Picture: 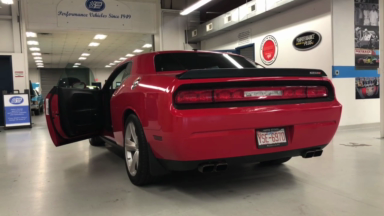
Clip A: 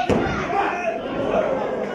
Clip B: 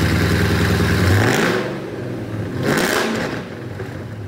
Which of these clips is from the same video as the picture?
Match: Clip B